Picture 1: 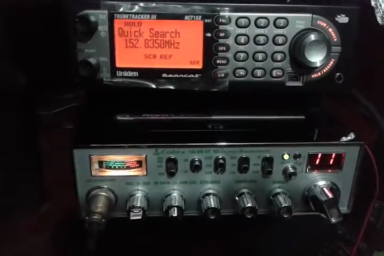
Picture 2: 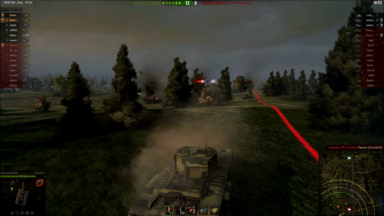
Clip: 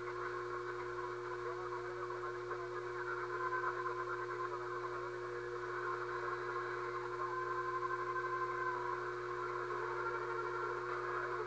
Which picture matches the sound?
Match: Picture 1